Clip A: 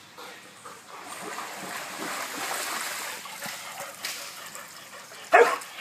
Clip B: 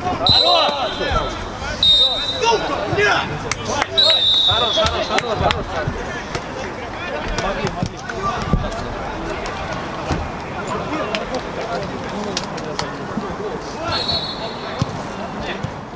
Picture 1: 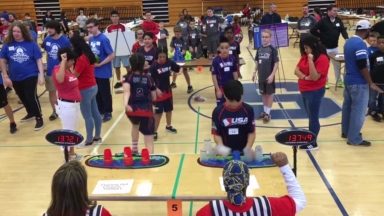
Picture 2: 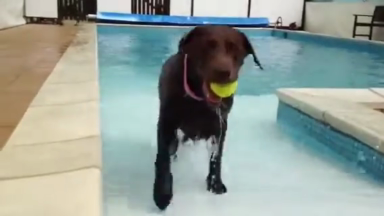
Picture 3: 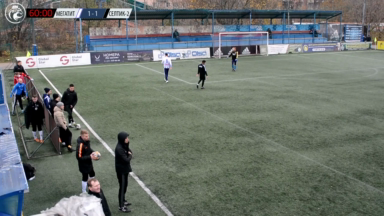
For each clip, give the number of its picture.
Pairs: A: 2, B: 3